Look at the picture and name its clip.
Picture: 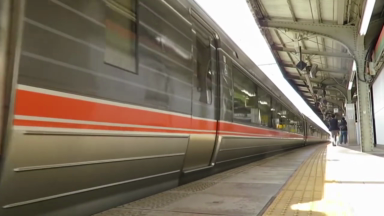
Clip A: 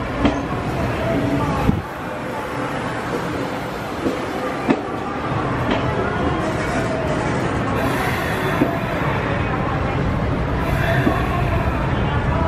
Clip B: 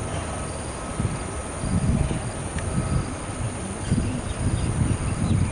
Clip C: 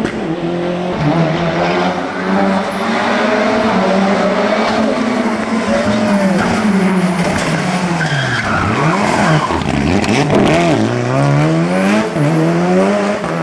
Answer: A